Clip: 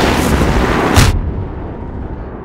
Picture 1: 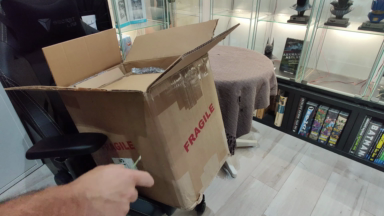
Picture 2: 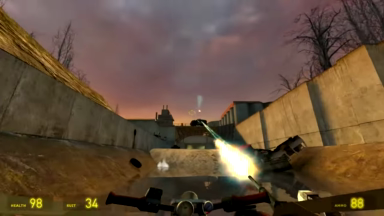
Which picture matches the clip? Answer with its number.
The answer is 2